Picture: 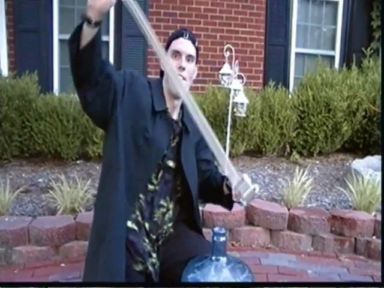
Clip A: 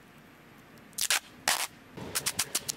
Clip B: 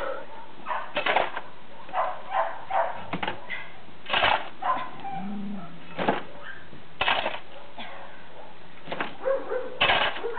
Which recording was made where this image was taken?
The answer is A